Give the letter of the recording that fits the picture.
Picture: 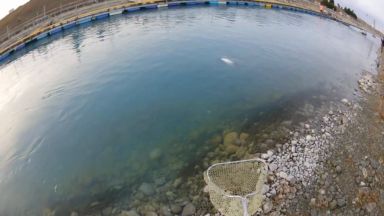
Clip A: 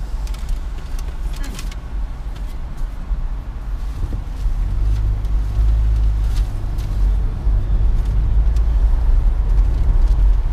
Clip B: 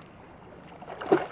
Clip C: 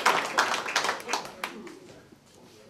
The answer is B